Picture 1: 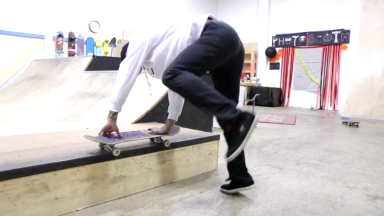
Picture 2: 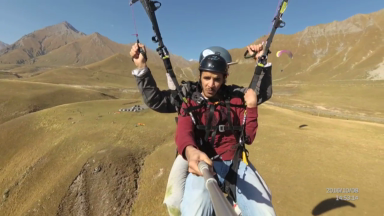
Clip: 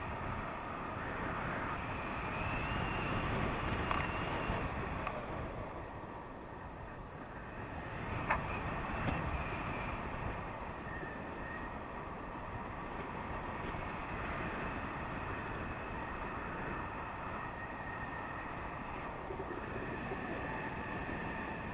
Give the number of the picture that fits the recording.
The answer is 2